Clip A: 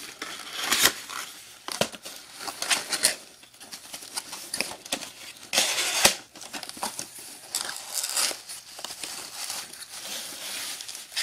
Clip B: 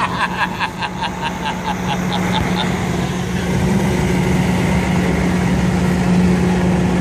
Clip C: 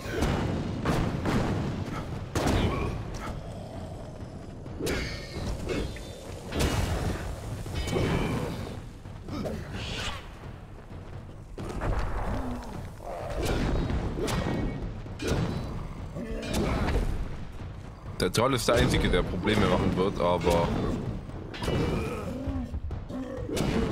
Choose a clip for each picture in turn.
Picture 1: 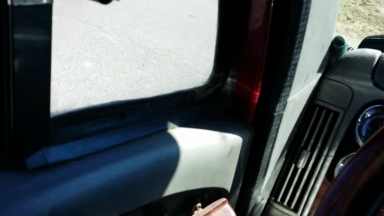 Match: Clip B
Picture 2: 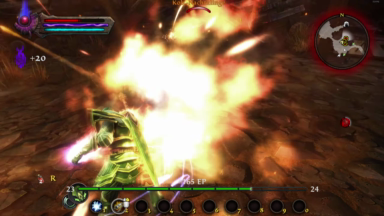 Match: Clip C